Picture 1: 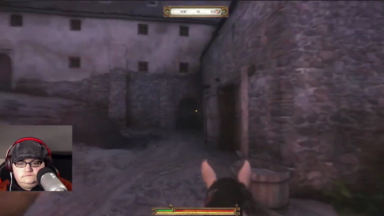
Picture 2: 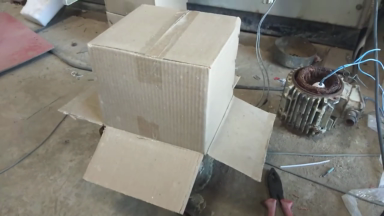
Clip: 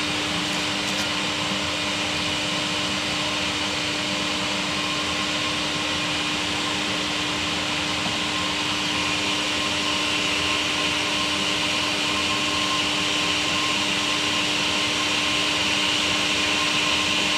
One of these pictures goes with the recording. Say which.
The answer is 2